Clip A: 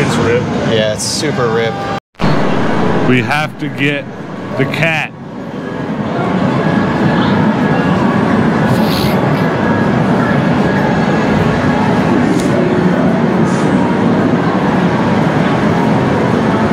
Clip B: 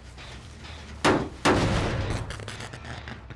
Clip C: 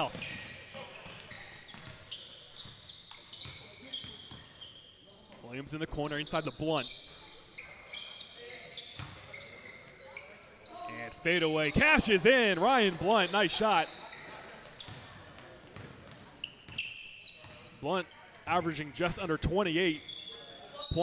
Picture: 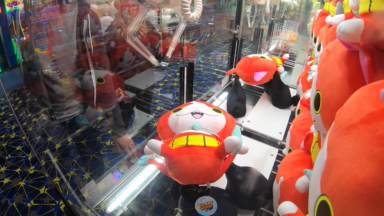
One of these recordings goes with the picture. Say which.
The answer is A